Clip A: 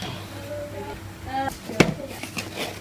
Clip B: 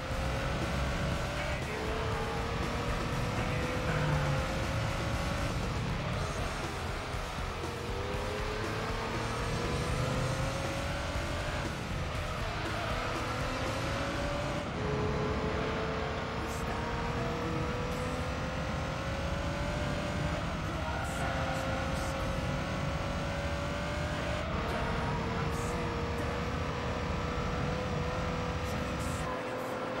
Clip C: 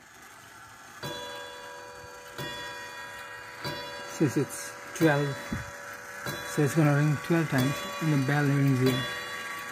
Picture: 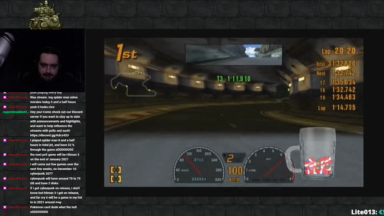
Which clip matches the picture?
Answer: B